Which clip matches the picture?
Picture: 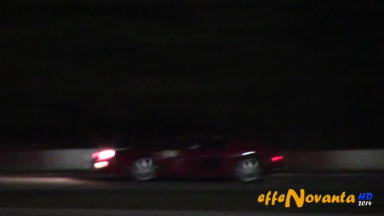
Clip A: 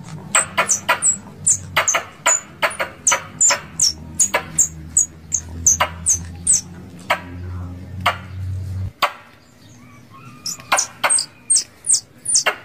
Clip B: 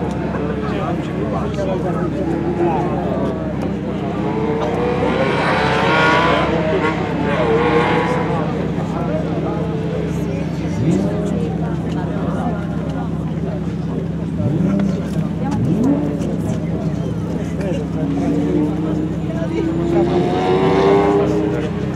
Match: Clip B